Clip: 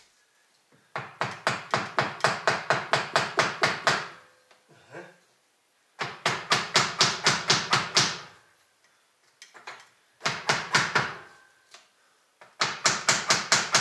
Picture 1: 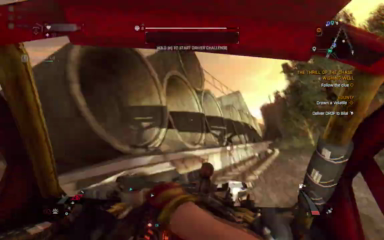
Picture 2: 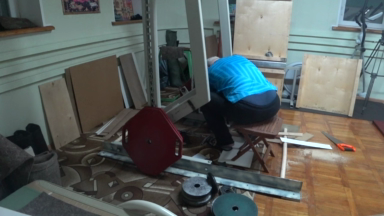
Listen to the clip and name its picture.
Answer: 2